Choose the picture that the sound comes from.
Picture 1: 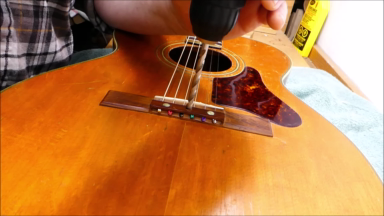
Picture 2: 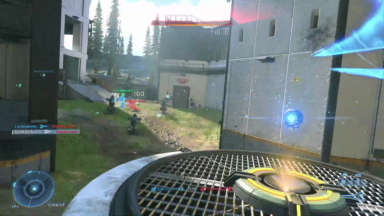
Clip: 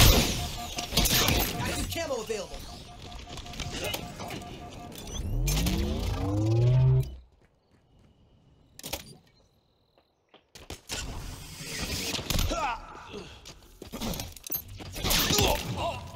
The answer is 2